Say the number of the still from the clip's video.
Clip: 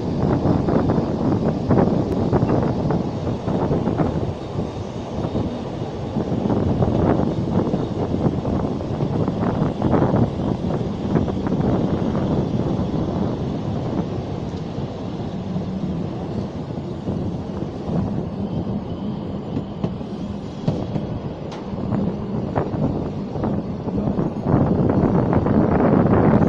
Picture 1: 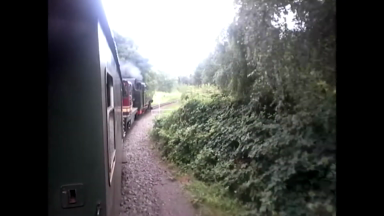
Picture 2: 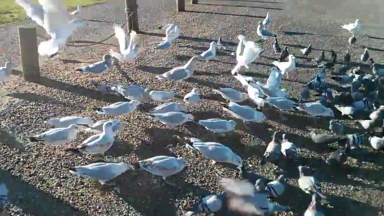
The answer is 1